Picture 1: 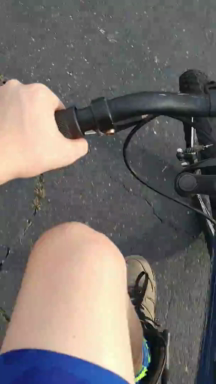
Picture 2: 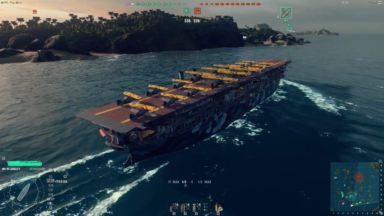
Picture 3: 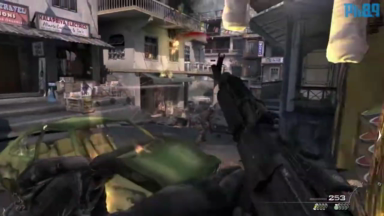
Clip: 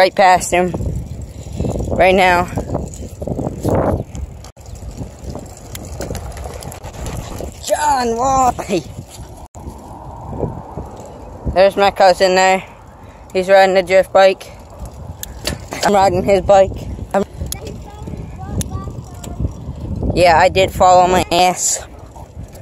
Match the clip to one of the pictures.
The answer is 1